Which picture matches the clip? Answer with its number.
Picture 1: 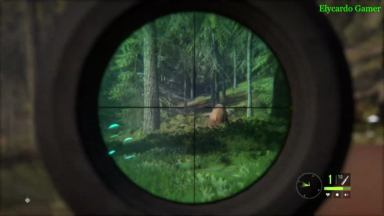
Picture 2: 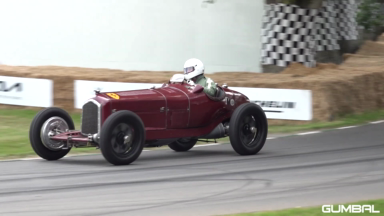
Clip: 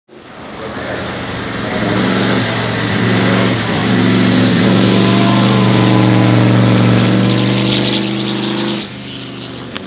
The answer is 2